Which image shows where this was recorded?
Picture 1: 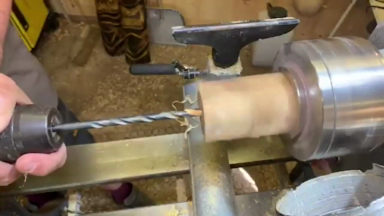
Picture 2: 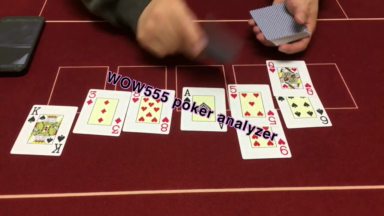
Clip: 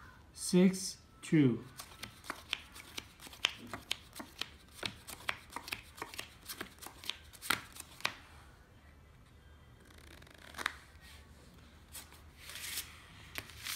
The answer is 2